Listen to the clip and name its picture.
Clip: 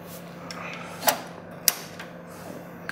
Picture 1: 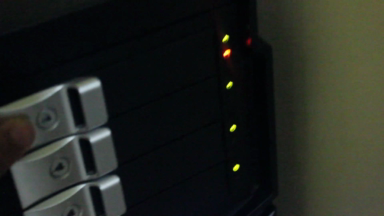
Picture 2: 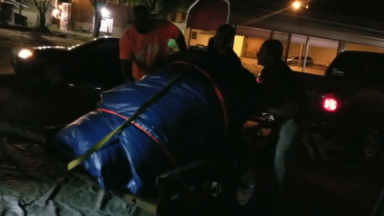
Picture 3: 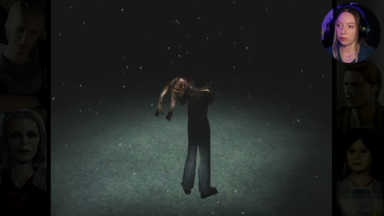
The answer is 1